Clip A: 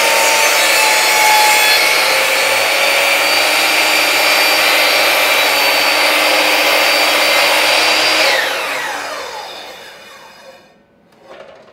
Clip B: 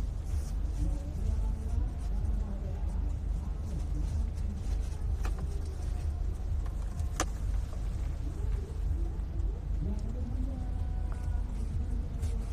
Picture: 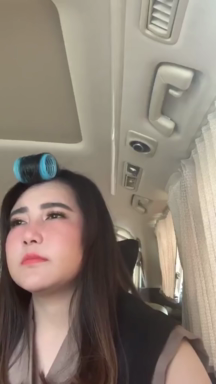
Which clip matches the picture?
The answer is B